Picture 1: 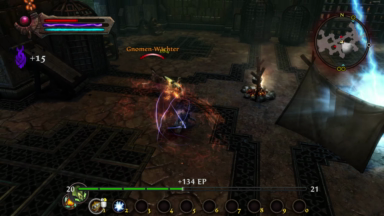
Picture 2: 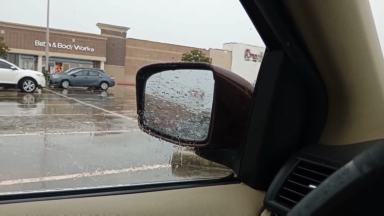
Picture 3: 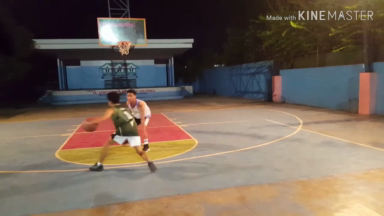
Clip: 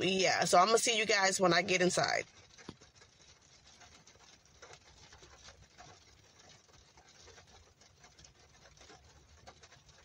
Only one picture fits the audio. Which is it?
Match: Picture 2